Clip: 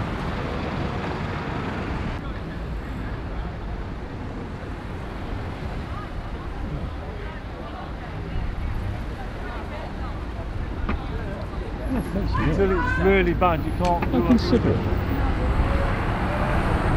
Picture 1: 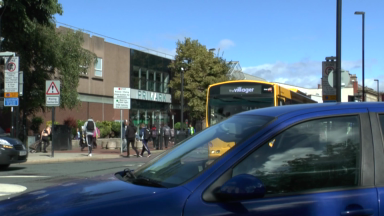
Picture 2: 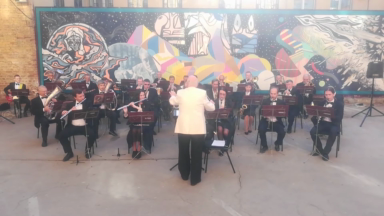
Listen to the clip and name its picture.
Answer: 1